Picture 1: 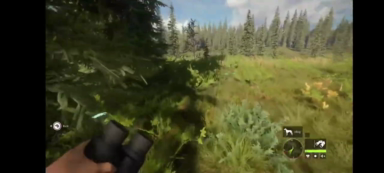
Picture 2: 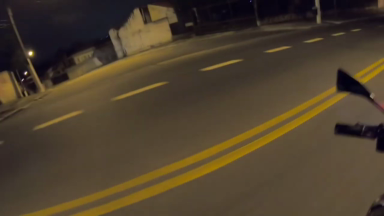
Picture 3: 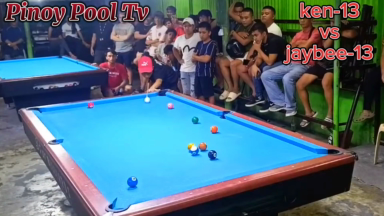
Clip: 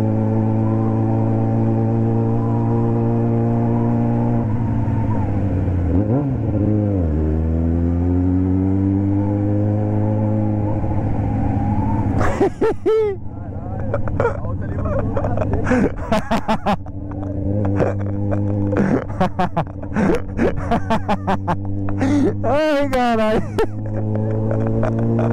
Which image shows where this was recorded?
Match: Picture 2